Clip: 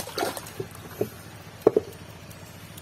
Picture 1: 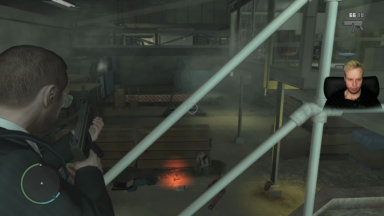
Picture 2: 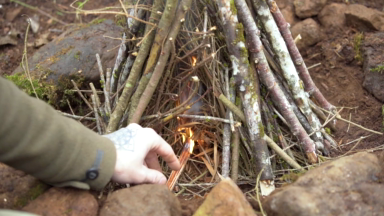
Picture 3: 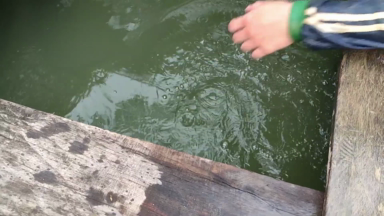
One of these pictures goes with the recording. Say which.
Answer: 3